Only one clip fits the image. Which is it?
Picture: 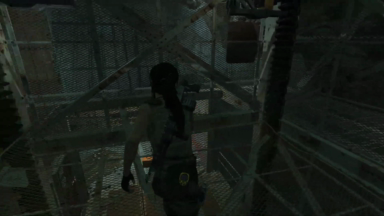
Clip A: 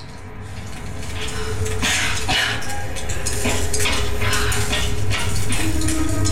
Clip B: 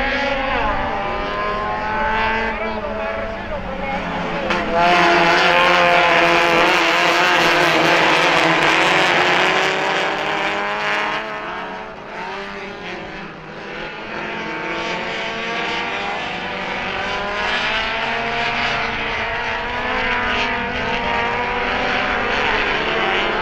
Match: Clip A